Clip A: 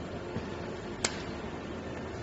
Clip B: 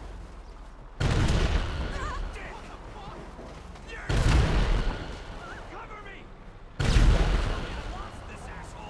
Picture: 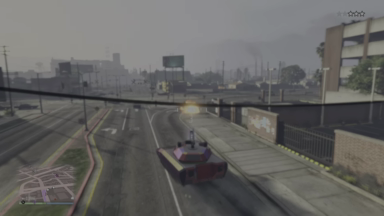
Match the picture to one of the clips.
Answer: B